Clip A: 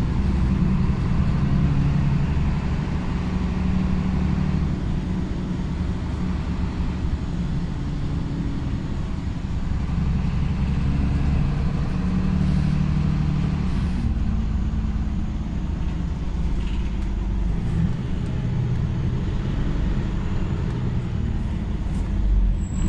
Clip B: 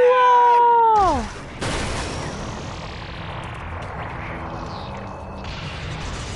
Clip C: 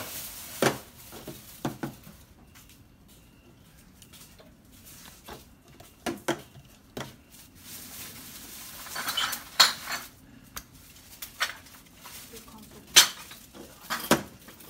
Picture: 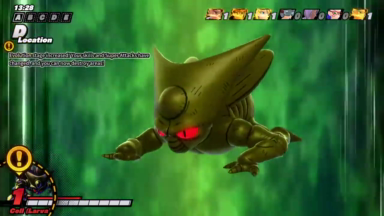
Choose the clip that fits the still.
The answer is B